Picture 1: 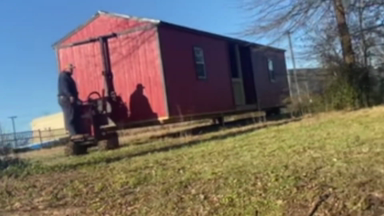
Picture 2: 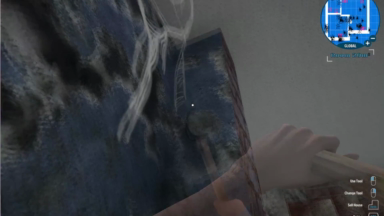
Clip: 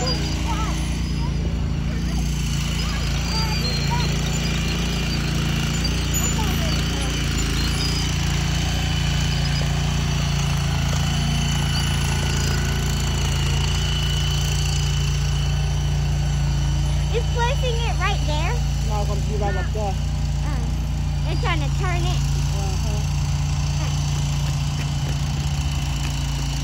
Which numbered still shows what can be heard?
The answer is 1